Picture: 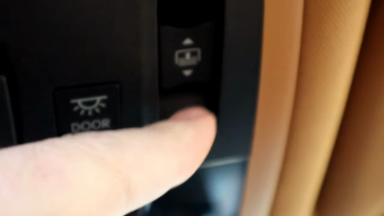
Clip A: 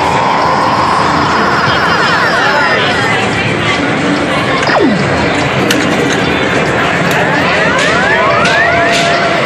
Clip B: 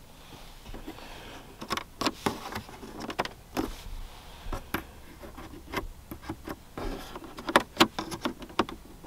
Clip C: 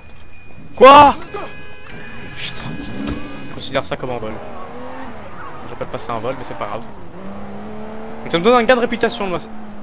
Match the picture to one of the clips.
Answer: B